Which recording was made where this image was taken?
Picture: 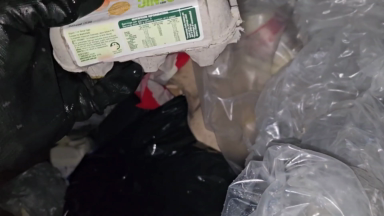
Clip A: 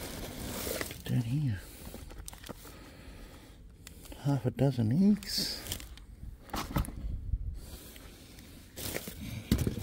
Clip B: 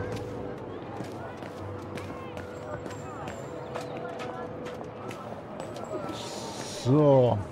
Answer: A